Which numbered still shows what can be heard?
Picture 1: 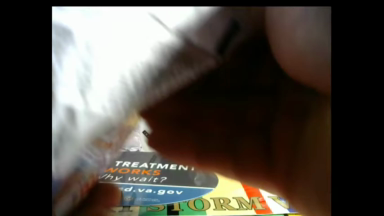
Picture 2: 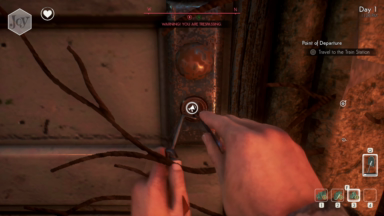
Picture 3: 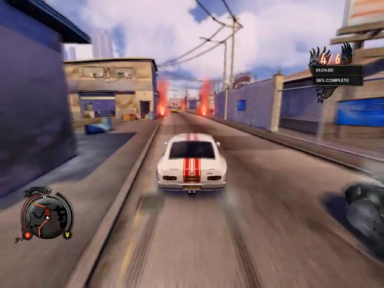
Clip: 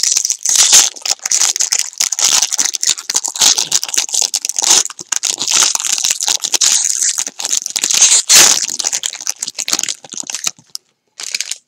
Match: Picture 1